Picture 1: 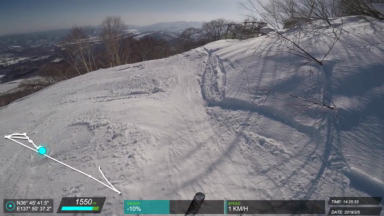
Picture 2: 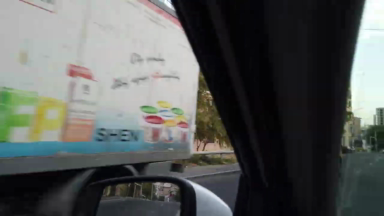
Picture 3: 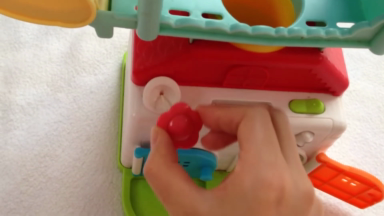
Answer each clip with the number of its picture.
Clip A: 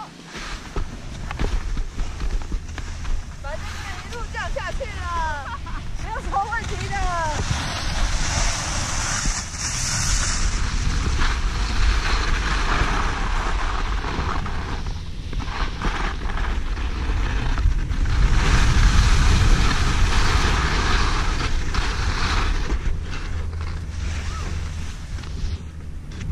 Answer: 1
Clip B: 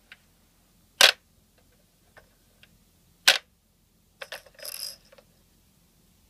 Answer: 3